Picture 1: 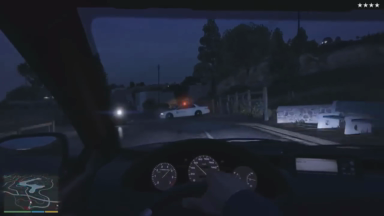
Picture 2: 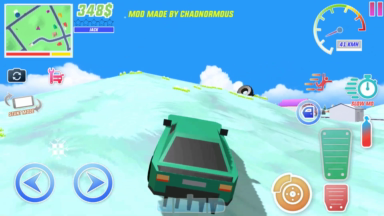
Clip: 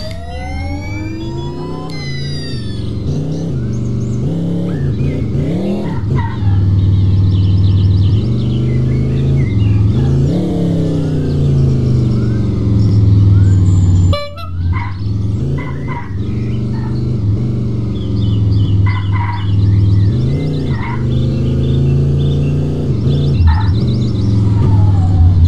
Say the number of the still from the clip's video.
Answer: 2